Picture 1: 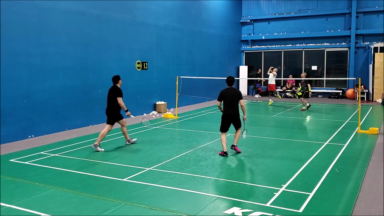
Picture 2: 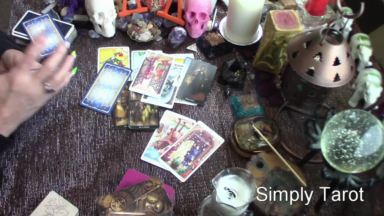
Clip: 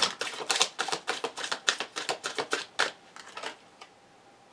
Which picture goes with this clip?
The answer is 2